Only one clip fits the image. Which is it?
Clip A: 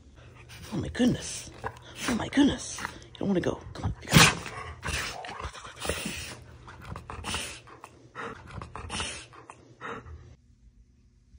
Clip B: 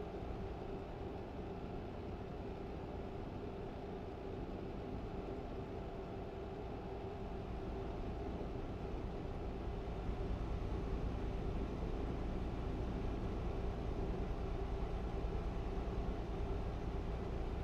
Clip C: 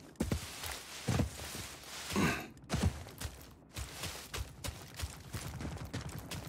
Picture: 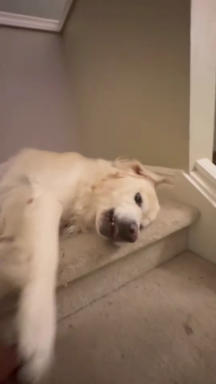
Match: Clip A